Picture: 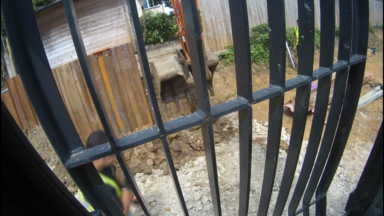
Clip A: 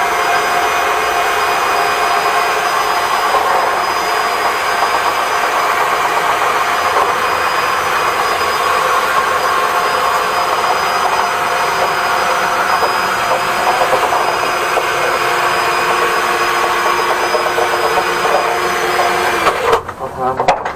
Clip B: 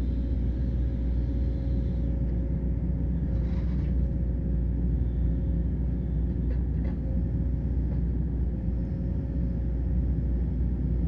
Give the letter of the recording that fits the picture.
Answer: B